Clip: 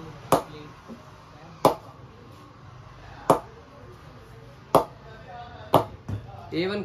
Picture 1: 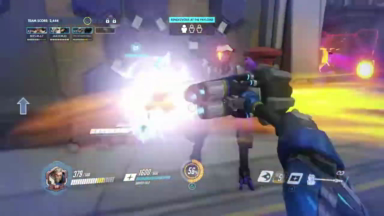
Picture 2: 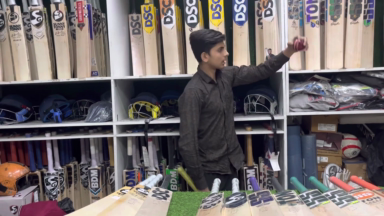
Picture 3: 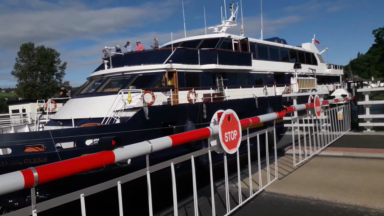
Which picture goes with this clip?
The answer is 2